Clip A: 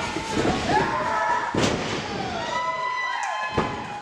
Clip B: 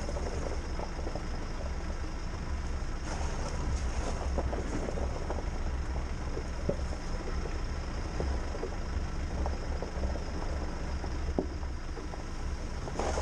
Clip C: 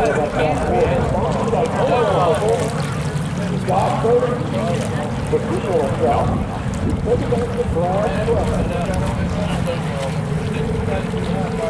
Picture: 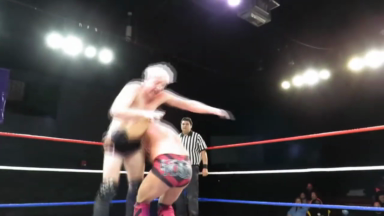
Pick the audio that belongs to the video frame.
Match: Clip A